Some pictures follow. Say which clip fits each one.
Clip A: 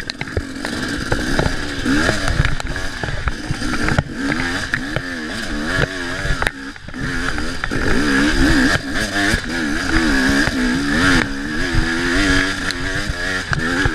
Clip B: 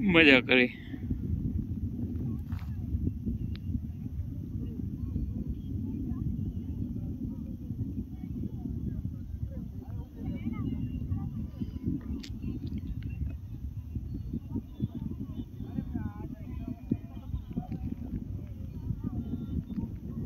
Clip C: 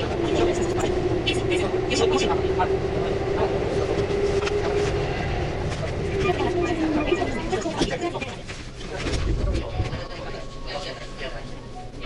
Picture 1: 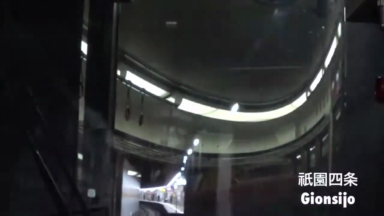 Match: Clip C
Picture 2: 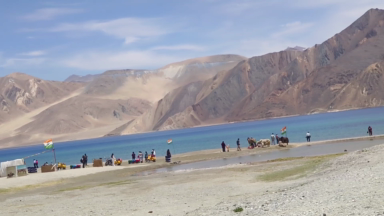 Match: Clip B